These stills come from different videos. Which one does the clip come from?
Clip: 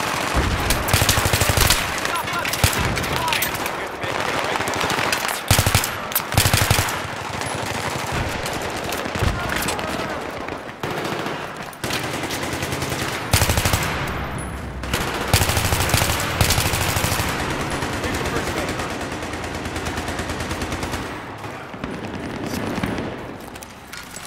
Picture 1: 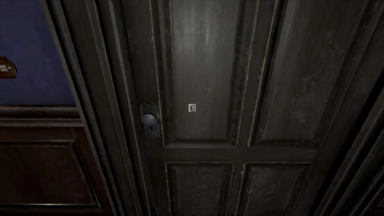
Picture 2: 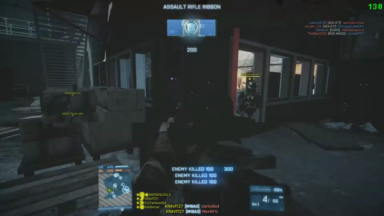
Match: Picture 2